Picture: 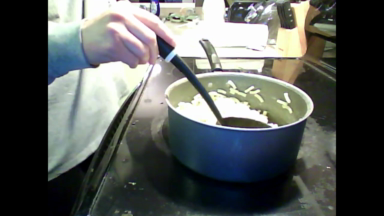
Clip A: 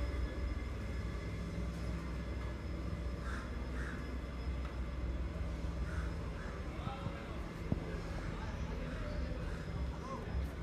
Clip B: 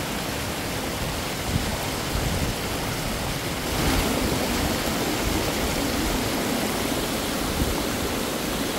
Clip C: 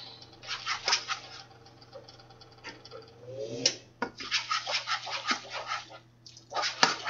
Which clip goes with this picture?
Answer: C